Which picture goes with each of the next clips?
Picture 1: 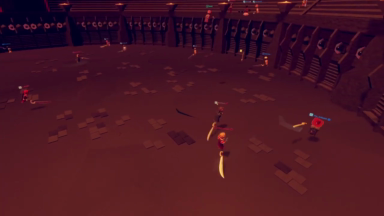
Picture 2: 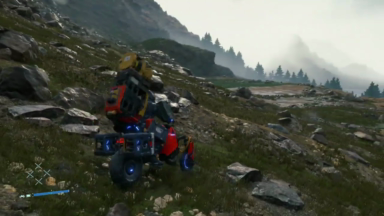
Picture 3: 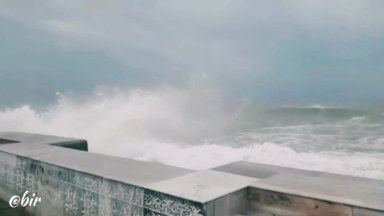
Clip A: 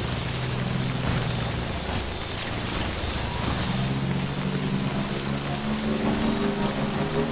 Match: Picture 2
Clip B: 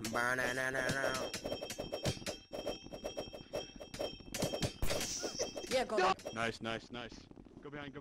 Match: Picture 1